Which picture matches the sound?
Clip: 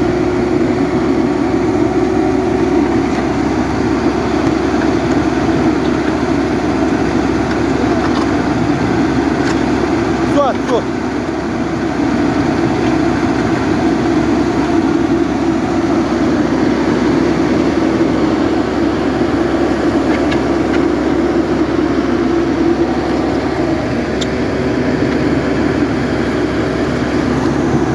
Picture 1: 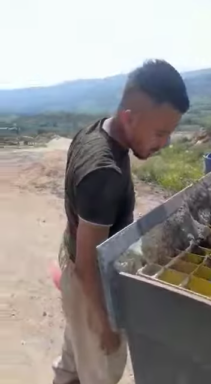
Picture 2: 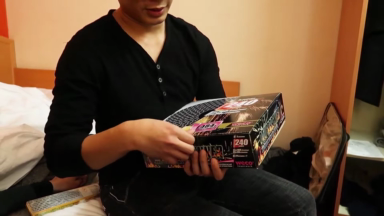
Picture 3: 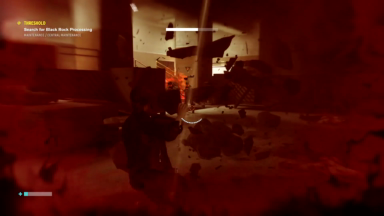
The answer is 1